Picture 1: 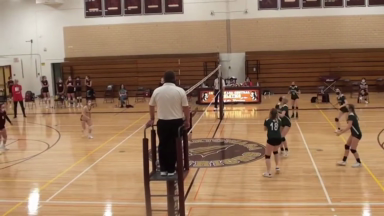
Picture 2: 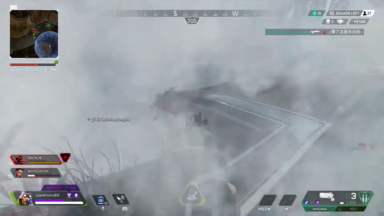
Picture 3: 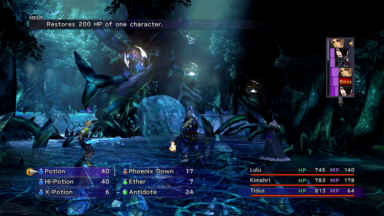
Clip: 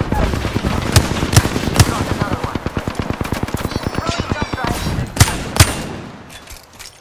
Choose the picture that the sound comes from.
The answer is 2